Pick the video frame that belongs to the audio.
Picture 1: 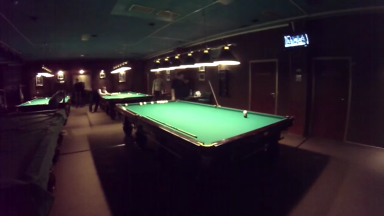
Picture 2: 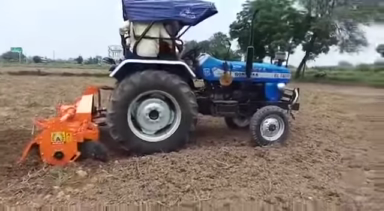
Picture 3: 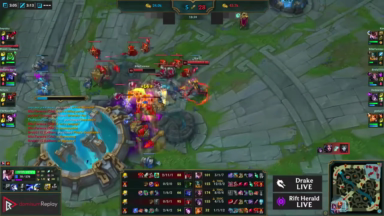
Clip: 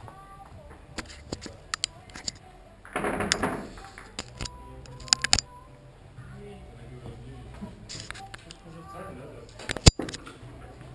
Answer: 1